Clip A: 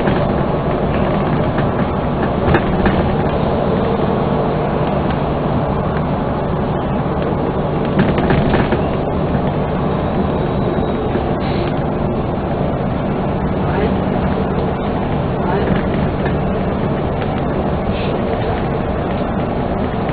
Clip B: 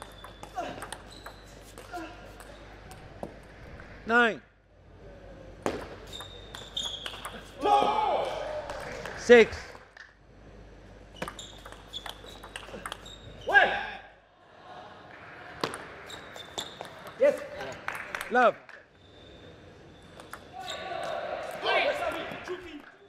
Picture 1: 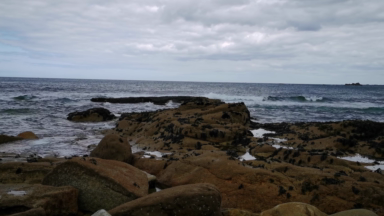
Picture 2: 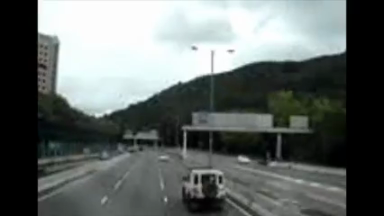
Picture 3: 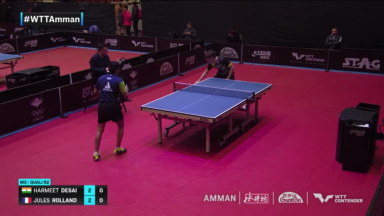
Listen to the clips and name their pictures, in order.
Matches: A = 2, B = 3